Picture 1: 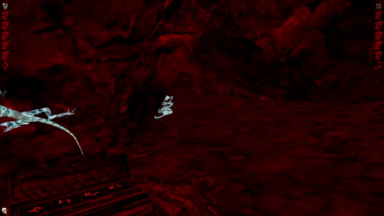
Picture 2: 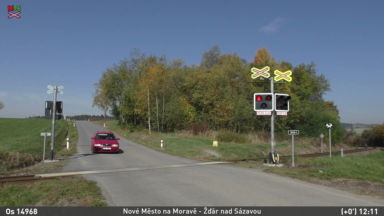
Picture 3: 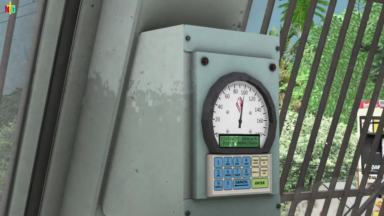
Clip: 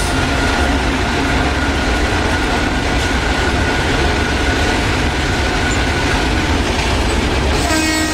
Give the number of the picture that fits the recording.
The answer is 3